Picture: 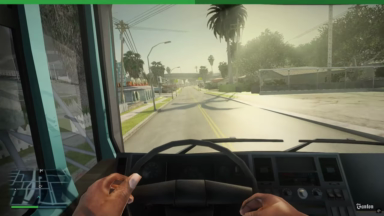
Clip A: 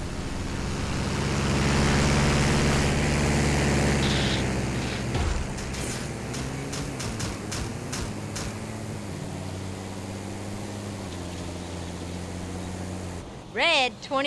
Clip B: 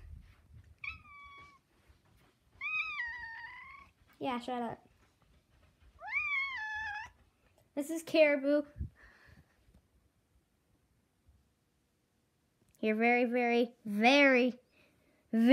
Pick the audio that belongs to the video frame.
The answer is A